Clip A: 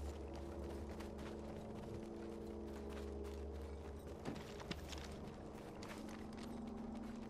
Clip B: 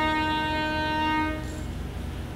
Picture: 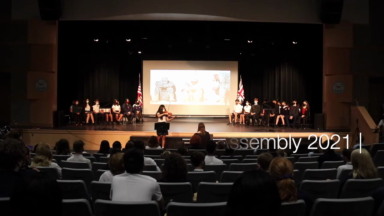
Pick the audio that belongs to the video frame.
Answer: B